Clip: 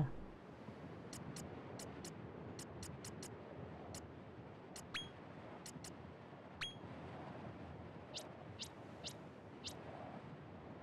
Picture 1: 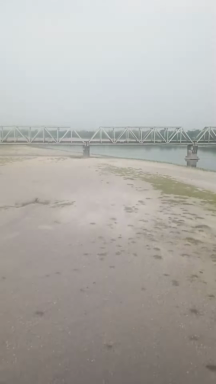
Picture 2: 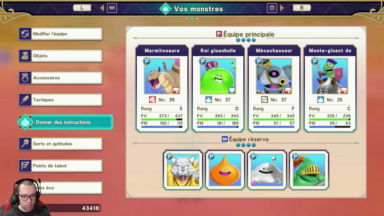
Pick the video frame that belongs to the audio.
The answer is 2